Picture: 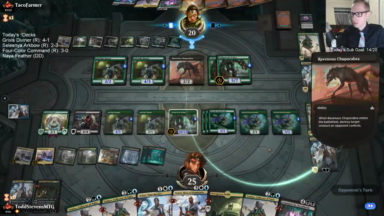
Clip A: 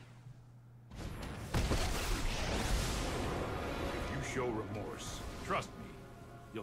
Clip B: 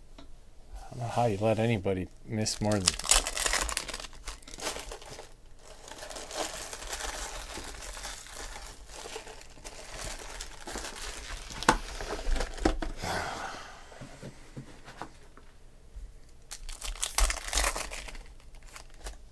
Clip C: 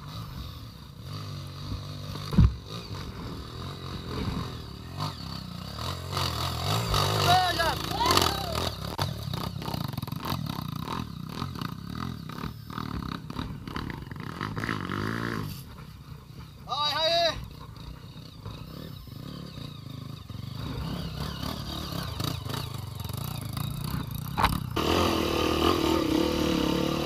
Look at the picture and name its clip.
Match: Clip A